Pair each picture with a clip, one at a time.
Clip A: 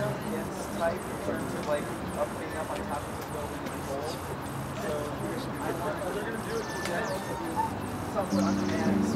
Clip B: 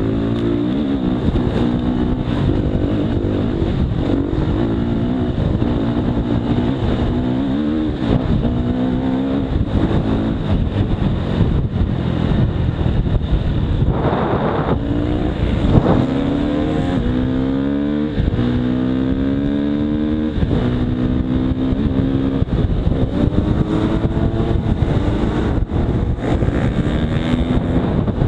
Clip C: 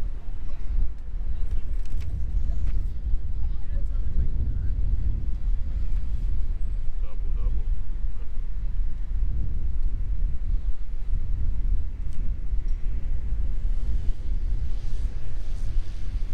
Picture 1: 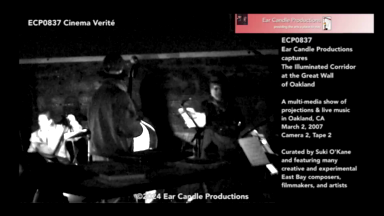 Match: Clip A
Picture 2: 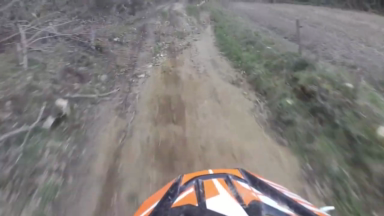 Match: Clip B